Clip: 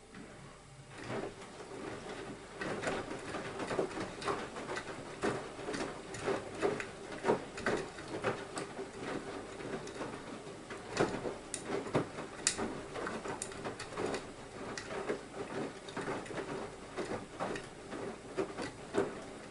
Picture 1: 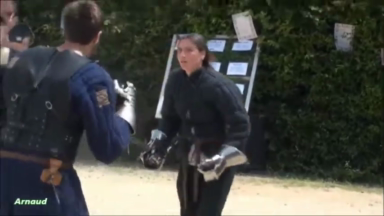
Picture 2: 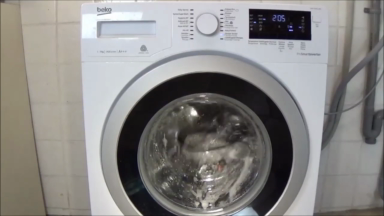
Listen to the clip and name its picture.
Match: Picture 2